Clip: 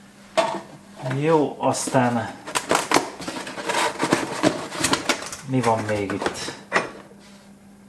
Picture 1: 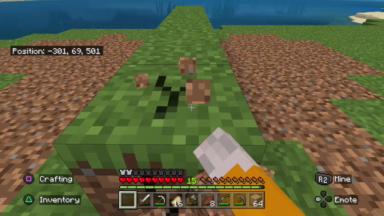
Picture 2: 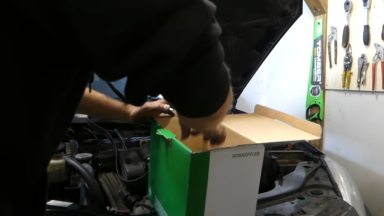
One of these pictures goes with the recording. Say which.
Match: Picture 2